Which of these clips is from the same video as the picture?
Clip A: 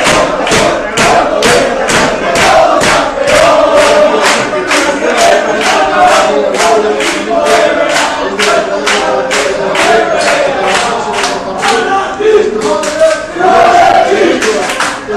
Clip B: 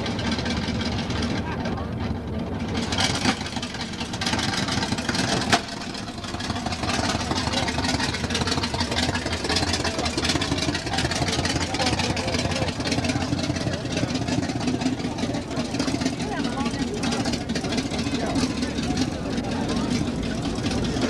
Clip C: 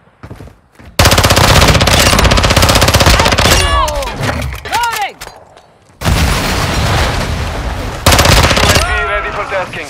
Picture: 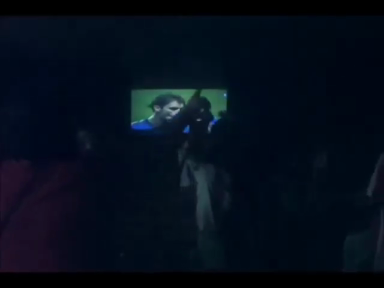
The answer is A